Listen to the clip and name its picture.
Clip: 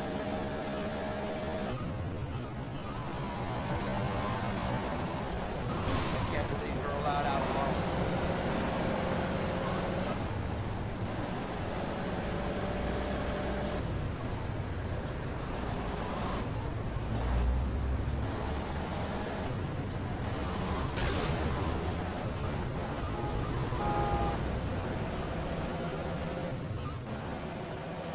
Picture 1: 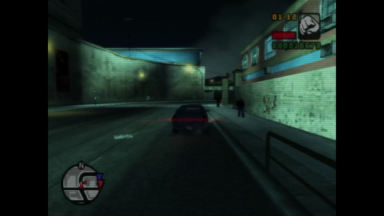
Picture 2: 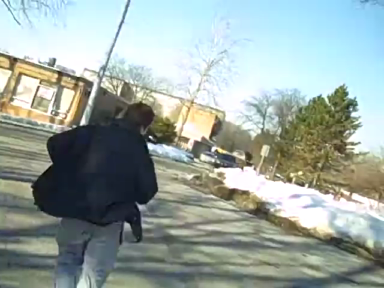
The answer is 1